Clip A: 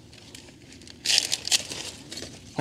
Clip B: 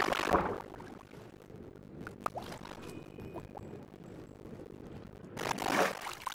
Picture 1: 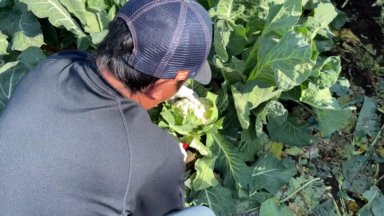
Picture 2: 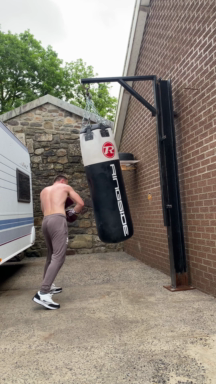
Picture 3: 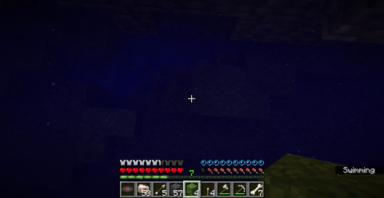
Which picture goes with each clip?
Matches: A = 1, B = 3